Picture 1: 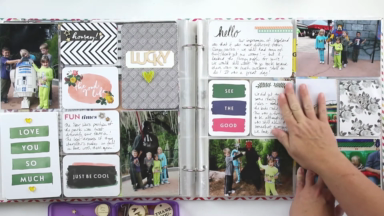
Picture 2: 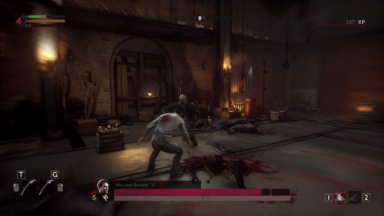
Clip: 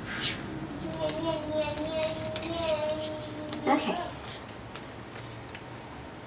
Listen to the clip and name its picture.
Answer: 1